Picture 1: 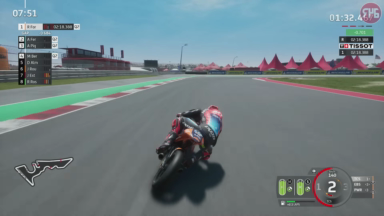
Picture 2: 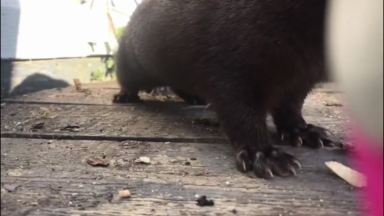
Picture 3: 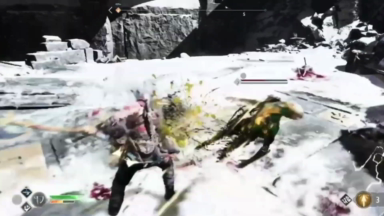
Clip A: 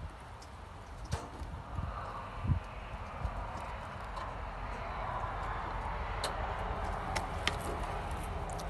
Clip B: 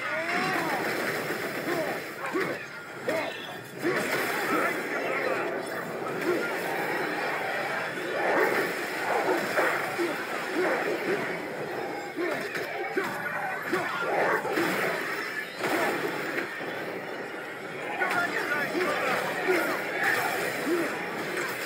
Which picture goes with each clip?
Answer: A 2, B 3